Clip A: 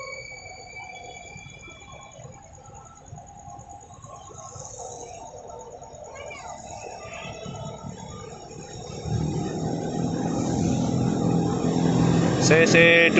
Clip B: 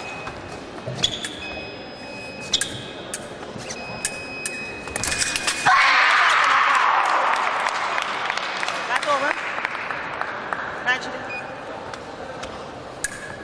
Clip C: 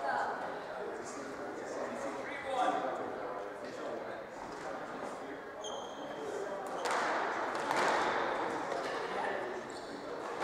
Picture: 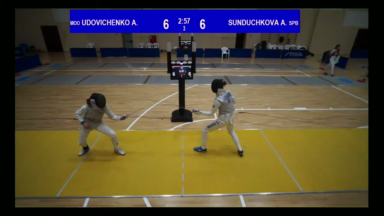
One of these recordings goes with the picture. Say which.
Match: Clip B